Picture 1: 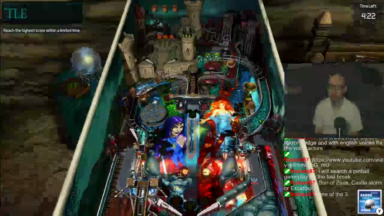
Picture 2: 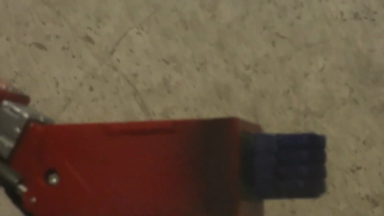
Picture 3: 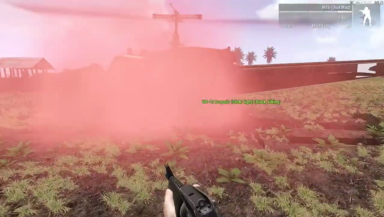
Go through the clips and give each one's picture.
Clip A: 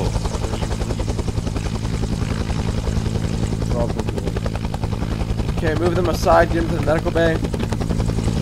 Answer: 3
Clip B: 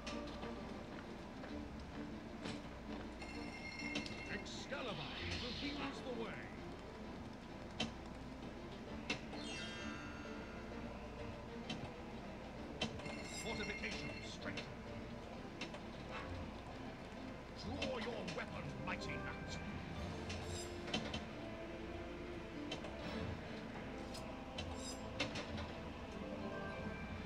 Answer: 1